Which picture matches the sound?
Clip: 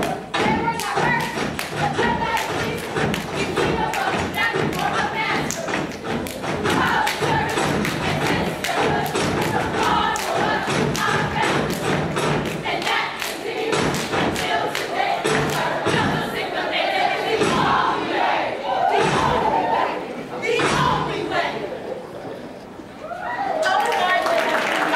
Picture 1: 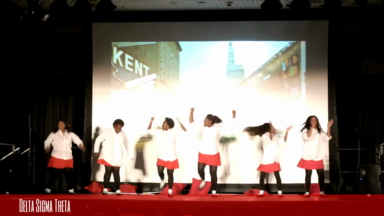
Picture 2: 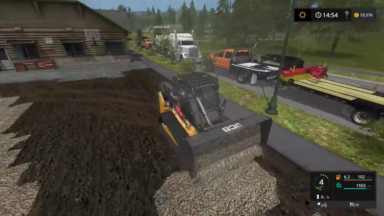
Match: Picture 1